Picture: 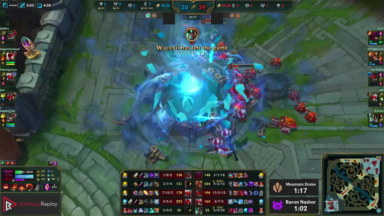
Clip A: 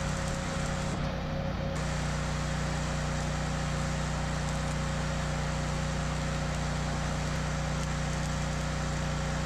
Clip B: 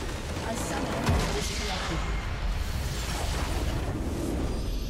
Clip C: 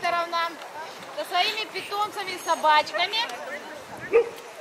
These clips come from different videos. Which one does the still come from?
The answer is B